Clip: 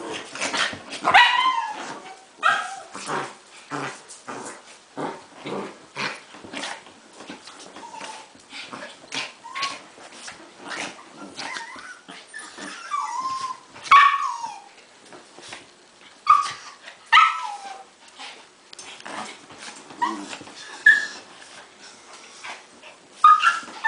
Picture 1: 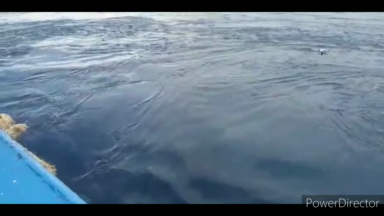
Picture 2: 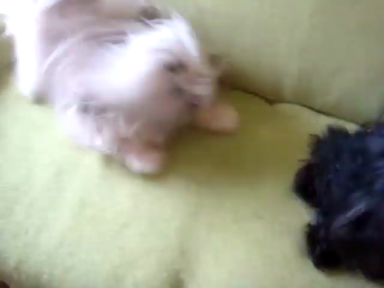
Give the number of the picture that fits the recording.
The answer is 2